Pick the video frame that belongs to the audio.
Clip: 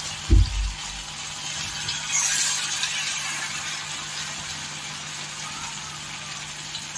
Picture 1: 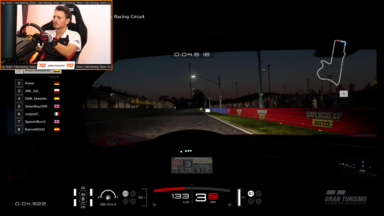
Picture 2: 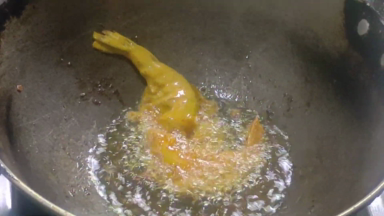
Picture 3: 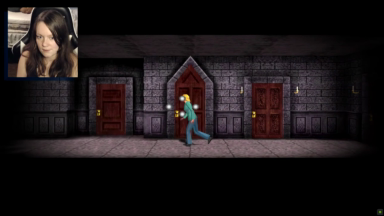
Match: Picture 2